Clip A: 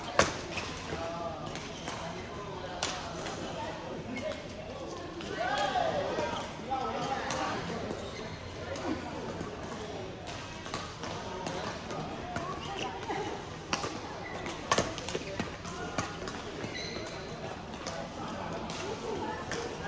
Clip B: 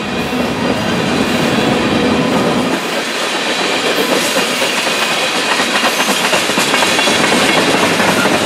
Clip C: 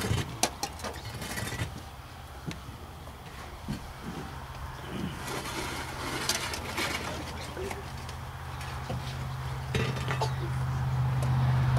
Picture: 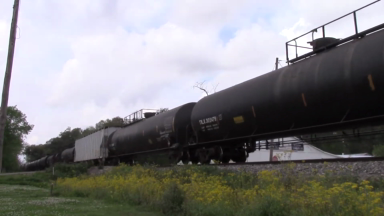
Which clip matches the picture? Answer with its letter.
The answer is B